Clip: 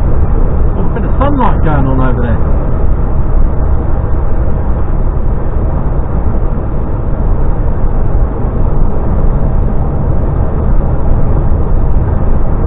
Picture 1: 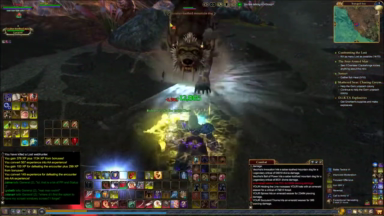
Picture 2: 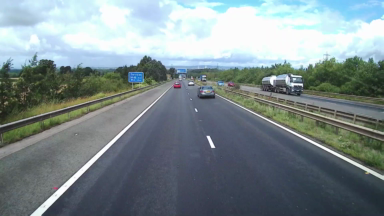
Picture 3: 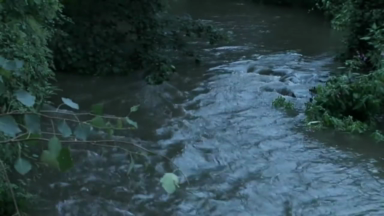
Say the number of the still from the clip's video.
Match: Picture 2